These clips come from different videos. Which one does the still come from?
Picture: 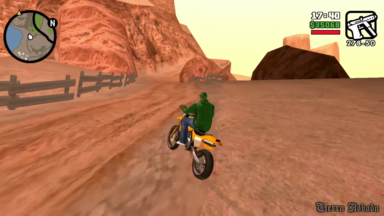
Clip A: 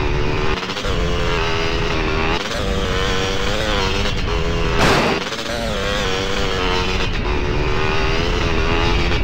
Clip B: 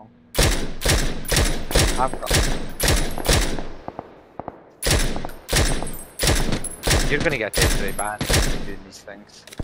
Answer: A